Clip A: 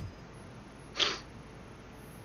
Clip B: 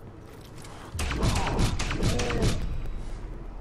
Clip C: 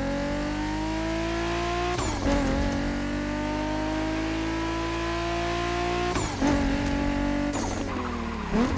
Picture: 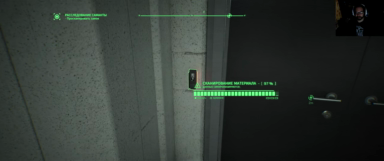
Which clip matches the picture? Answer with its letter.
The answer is A